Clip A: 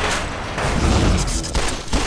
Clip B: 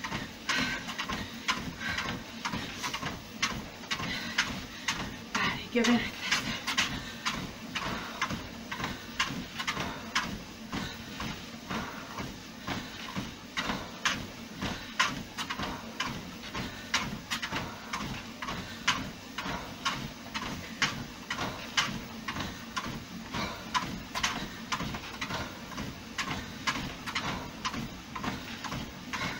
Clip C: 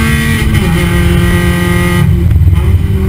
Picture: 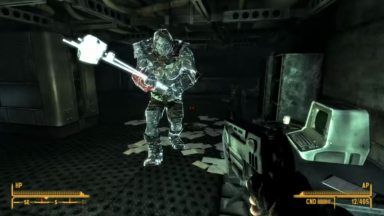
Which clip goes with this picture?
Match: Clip A